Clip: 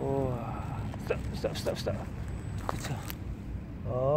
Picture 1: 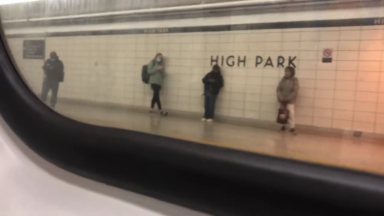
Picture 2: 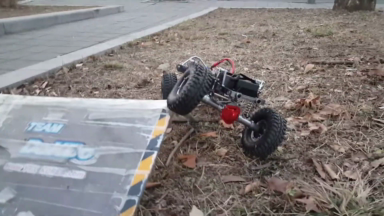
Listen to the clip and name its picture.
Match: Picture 2